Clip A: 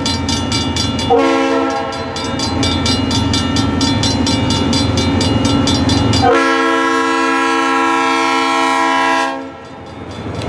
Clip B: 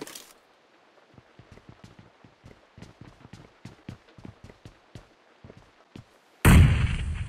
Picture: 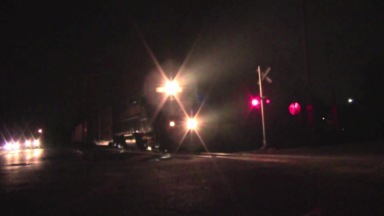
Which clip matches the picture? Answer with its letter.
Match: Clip A